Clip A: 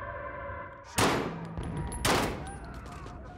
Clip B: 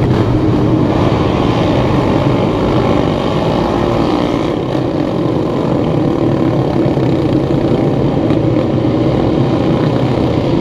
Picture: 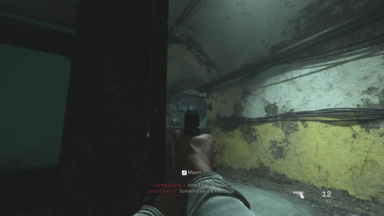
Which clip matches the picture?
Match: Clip A